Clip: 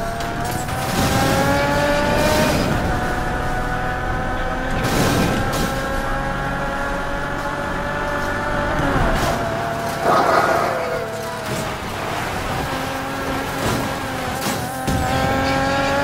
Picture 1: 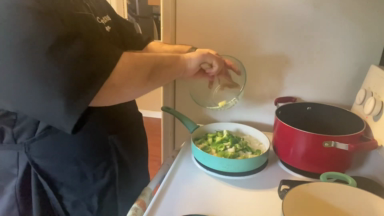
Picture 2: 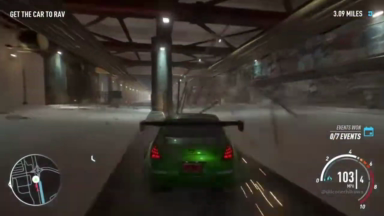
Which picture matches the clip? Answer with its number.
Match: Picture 2